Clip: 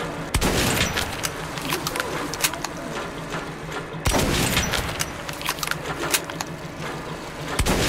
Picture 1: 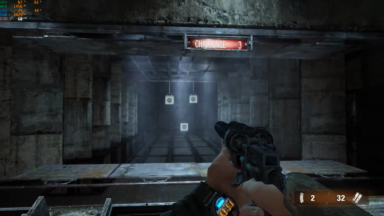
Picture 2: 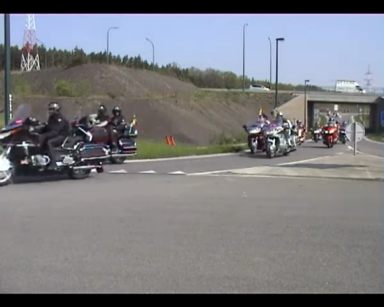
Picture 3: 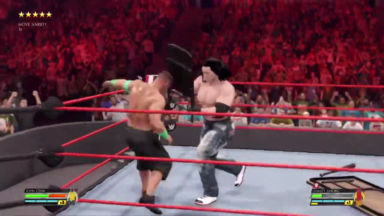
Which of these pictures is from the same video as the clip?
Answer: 1